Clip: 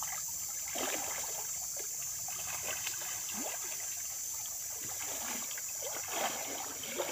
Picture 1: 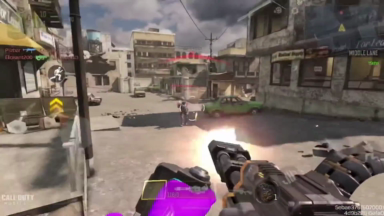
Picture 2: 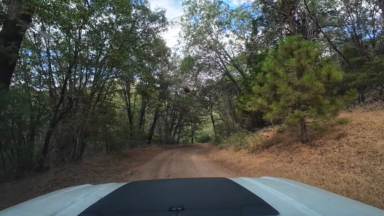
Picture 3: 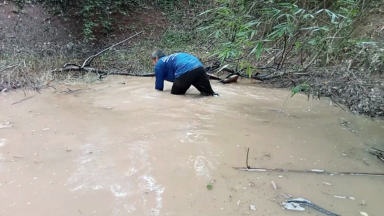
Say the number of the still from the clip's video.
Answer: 3